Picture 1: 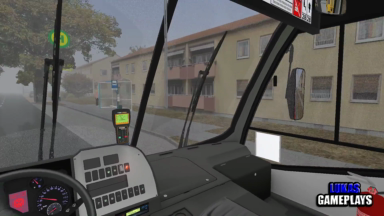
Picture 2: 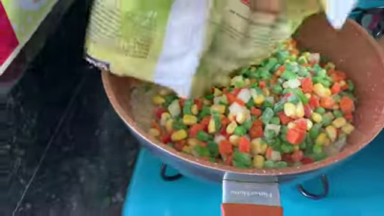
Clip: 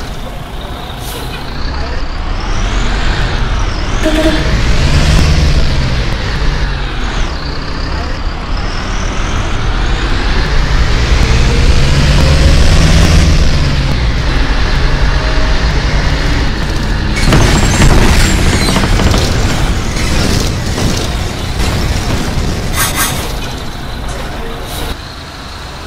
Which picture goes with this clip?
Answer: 1